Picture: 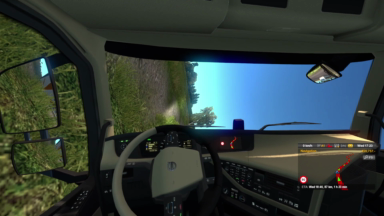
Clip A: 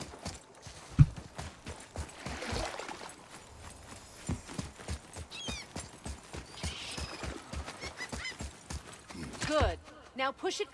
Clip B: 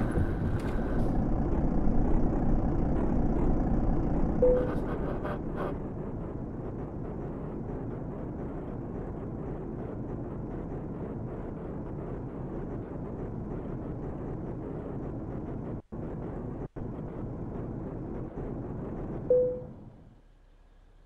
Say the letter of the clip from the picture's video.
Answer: B